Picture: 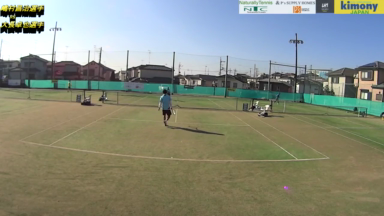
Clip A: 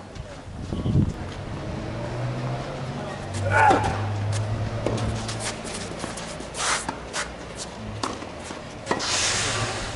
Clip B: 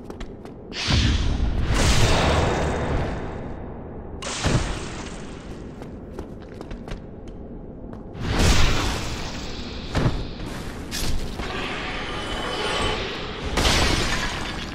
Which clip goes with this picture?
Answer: A